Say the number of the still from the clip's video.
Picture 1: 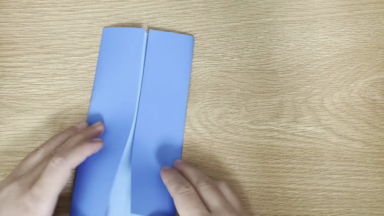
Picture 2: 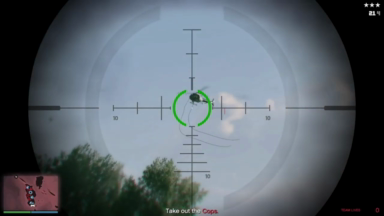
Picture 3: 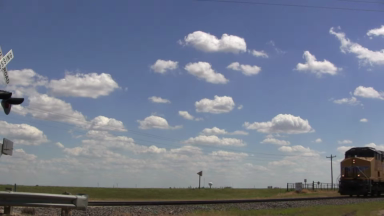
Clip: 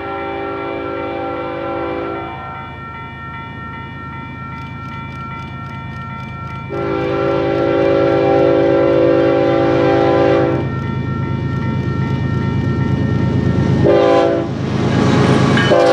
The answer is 3